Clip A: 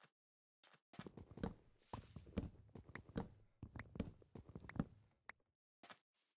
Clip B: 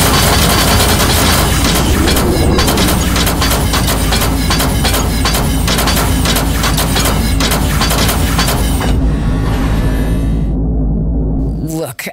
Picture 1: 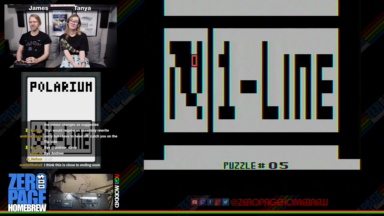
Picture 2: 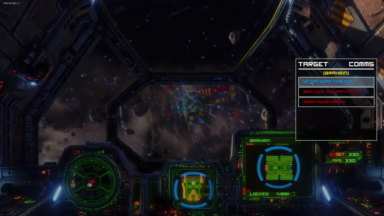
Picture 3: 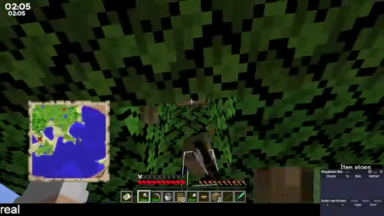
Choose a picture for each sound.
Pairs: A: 3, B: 2